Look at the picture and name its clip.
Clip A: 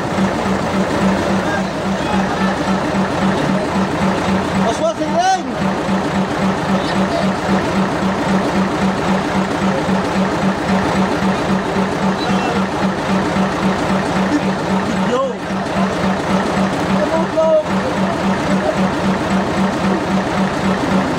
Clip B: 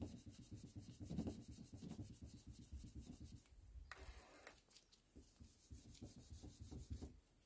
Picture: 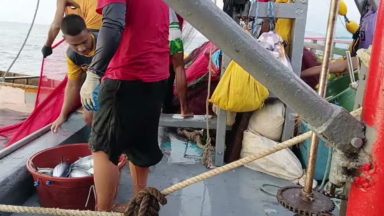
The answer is A